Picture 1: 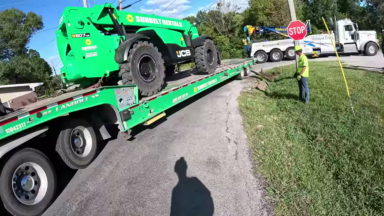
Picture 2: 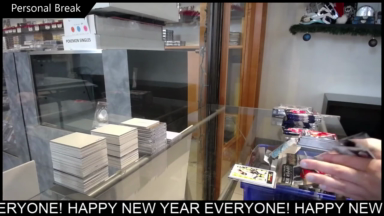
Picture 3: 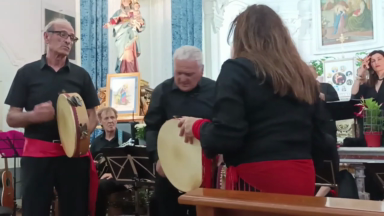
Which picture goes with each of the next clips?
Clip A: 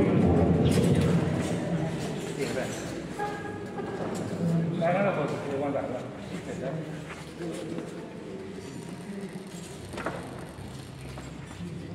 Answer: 3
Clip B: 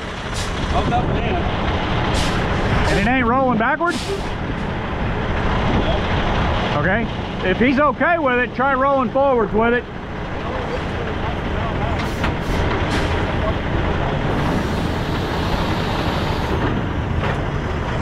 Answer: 1